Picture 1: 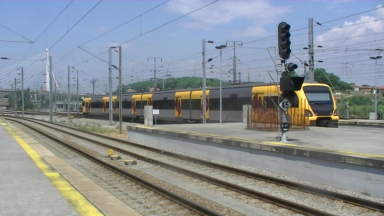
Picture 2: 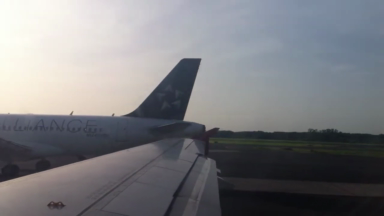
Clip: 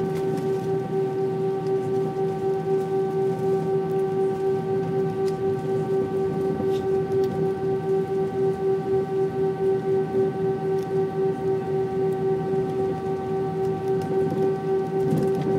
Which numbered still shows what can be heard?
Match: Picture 2